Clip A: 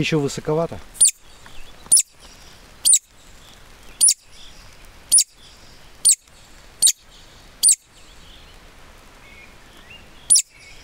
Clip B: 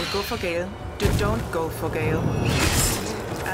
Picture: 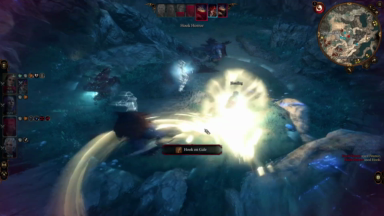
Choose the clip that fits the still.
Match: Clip B